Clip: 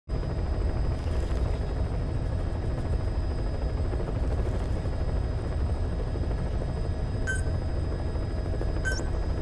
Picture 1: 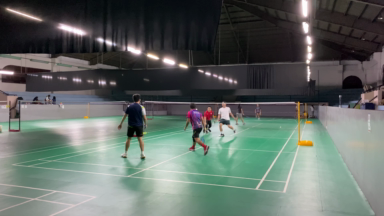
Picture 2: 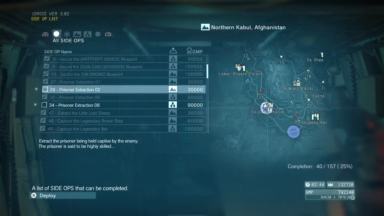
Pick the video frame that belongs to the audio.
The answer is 2